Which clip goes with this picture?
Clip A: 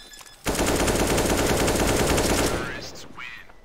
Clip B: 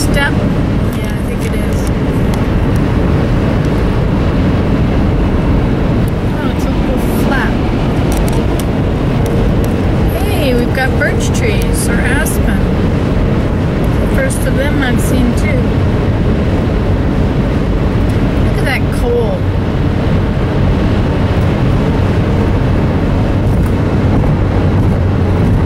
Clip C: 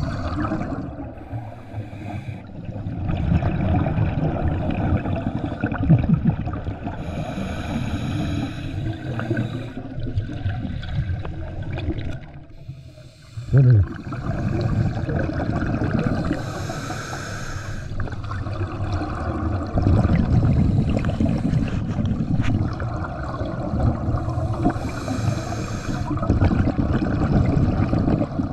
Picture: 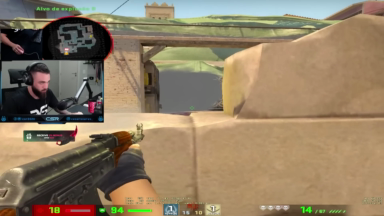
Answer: A